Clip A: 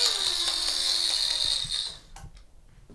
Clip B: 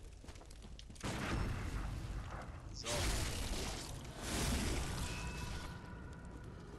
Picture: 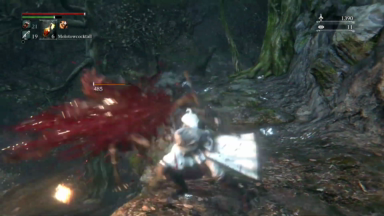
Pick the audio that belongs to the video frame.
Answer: B